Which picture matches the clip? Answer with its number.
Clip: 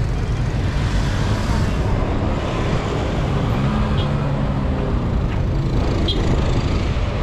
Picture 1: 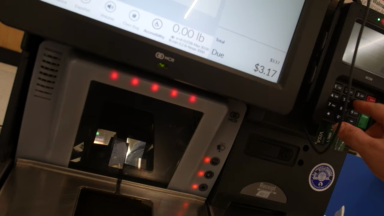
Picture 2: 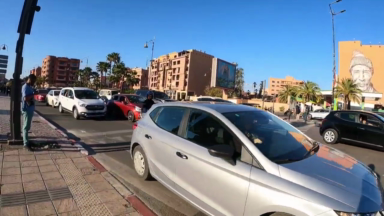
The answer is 2